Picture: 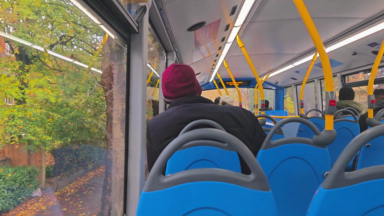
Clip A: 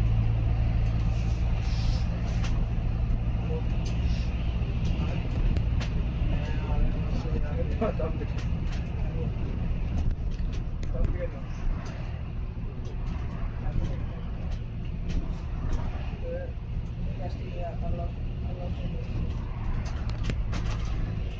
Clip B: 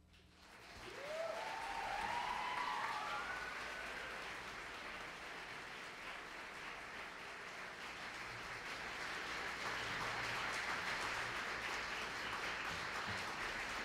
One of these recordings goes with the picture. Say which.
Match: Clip A